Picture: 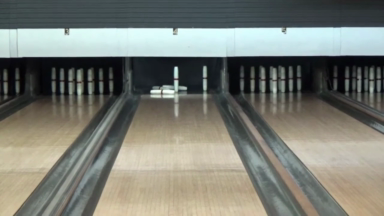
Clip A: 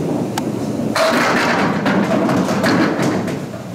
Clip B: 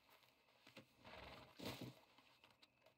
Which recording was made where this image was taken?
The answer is A